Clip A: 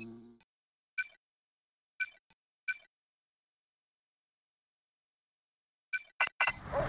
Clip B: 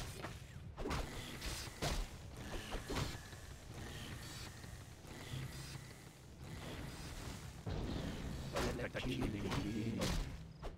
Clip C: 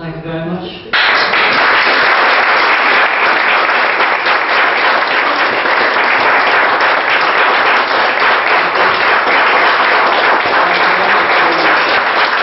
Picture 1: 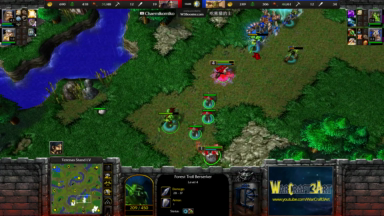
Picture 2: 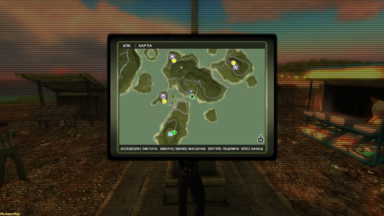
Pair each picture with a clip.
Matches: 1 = B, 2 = A